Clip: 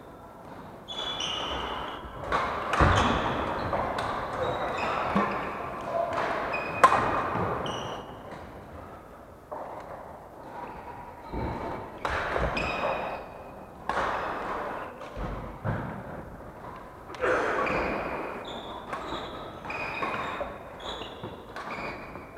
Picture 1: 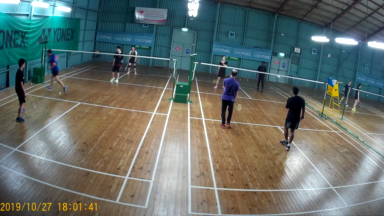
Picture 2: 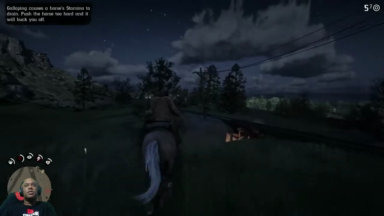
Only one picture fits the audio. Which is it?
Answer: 1